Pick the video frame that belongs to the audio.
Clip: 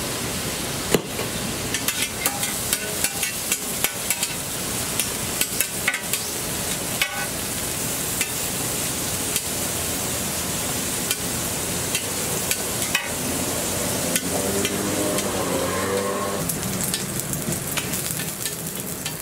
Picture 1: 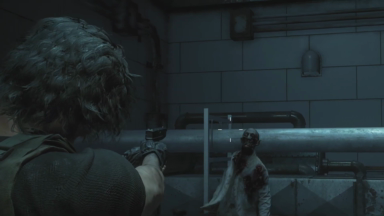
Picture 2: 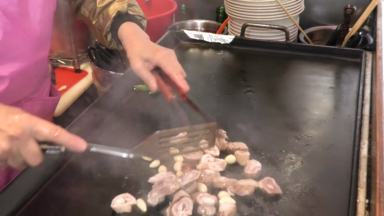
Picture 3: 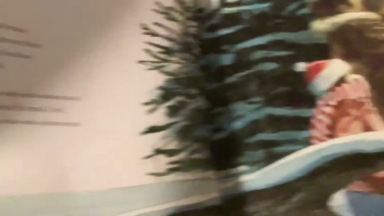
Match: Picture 2